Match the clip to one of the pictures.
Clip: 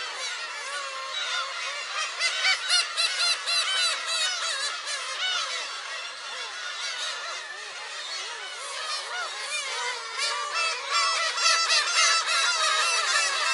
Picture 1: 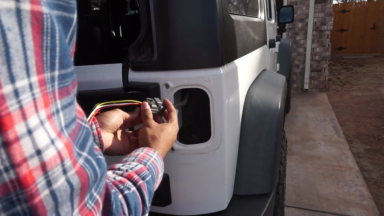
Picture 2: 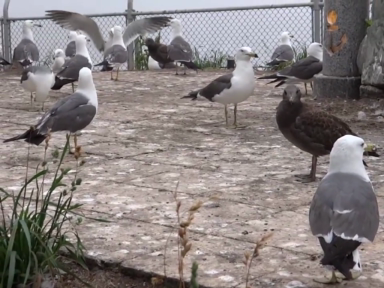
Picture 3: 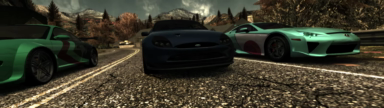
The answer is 2